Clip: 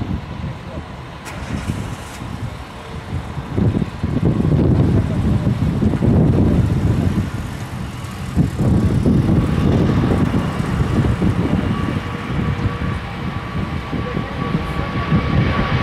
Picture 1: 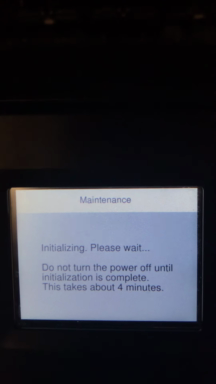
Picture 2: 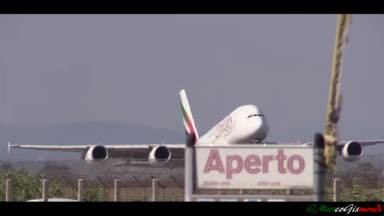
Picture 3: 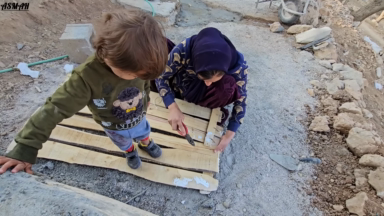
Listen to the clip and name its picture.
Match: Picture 2